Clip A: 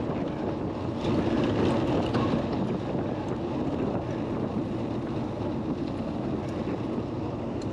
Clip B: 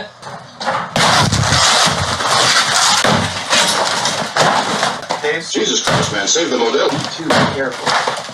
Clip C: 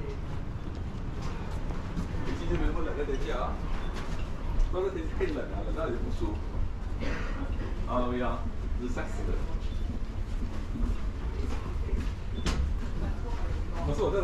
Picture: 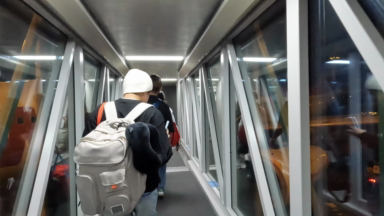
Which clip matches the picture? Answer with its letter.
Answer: C